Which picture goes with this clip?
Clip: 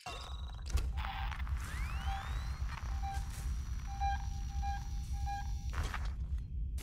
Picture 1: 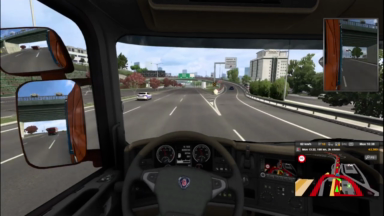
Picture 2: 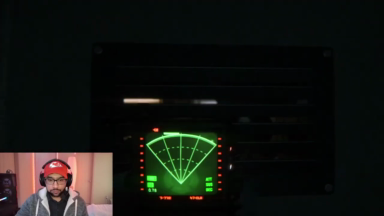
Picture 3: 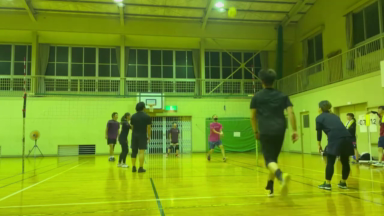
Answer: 2